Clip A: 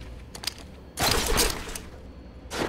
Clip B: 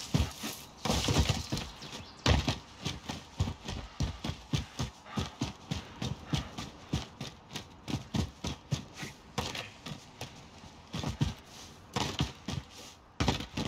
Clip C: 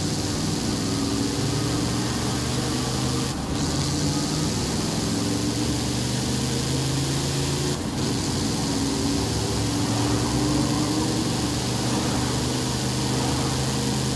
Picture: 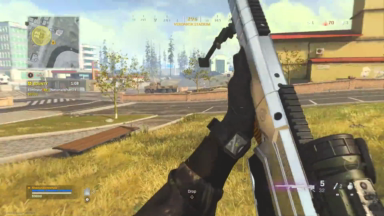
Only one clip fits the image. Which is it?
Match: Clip B